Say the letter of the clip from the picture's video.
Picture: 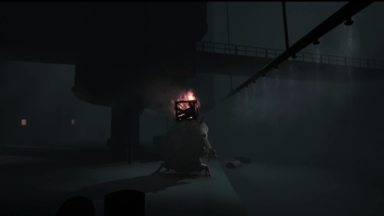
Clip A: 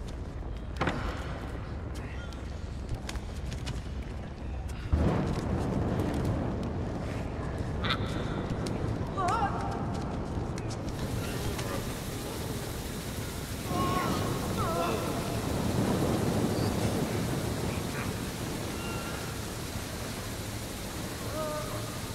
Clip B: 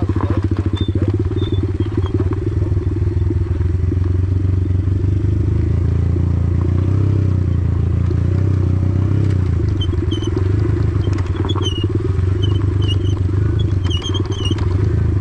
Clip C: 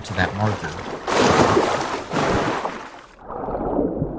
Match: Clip A